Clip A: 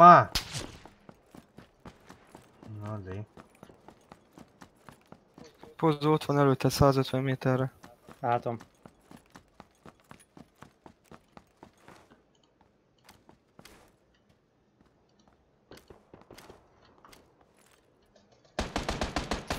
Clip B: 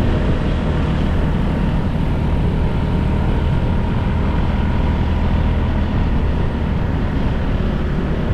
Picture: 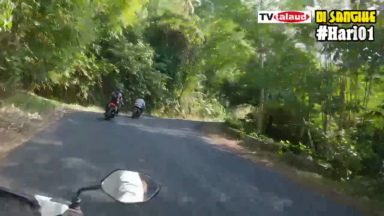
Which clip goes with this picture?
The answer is B